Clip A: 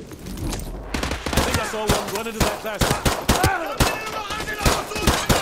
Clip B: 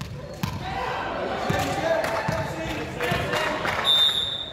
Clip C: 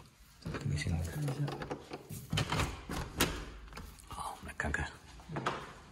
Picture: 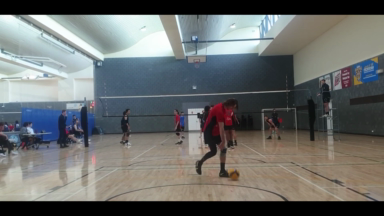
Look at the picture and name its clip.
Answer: B